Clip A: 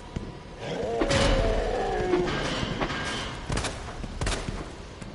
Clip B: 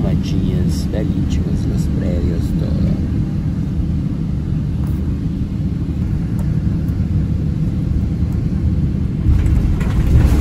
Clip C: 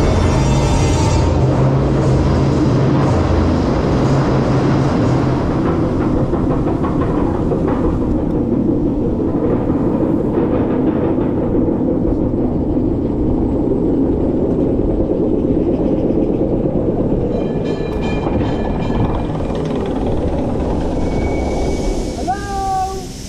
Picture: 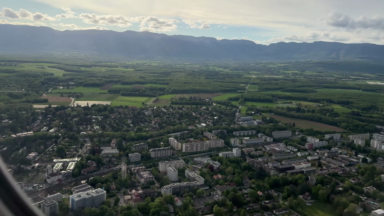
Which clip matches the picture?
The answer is B